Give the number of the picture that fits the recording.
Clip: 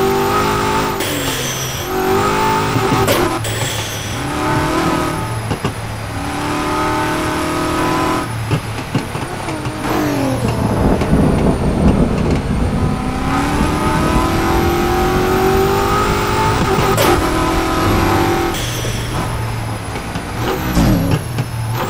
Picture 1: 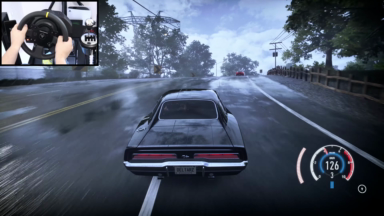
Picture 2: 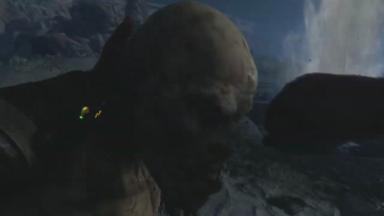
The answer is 1